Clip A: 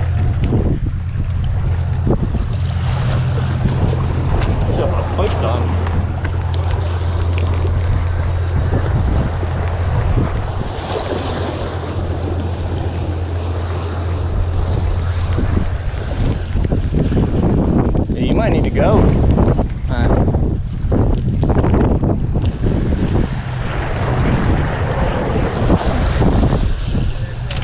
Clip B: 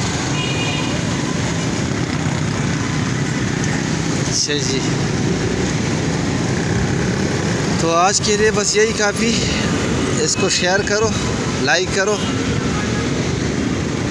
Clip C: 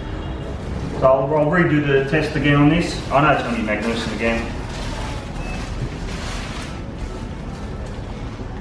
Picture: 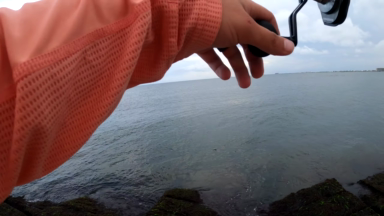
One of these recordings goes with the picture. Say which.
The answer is A